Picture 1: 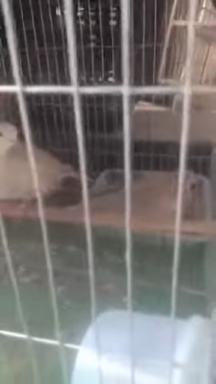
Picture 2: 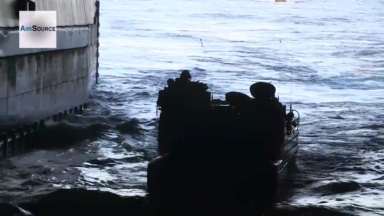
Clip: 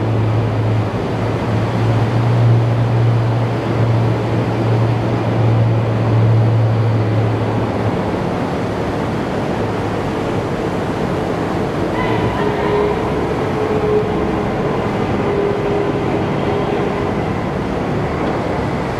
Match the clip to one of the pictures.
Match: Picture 2